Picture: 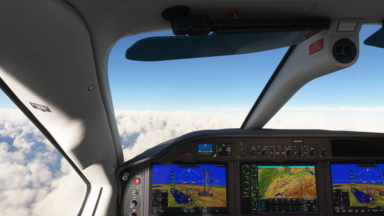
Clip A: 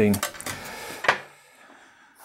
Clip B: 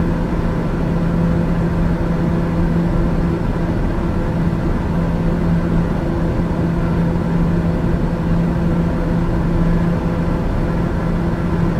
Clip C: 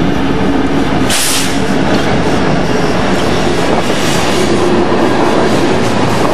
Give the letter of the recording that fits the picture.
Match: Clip B